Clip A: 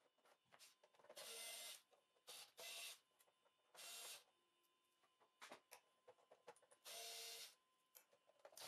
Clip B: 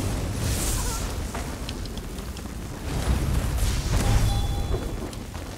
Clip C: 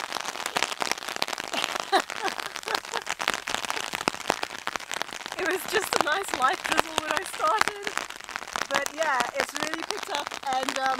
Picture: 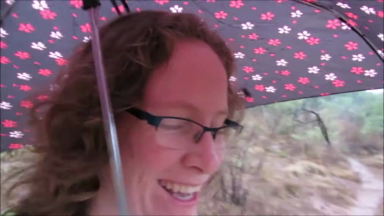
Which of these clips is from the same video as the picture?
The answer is C